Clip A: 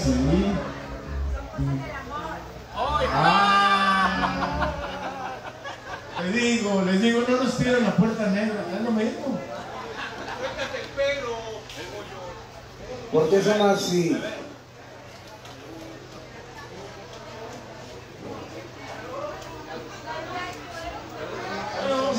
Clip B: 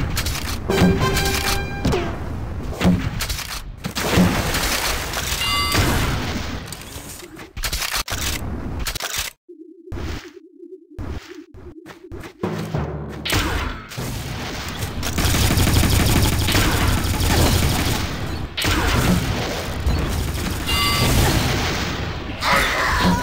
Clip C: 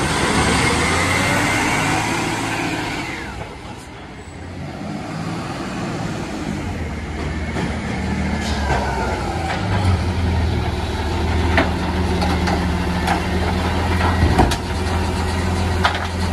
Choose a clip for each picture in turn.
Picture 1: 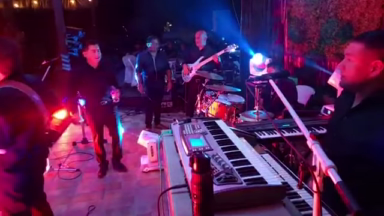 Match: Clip A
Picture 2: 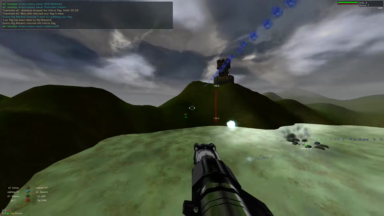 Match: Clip B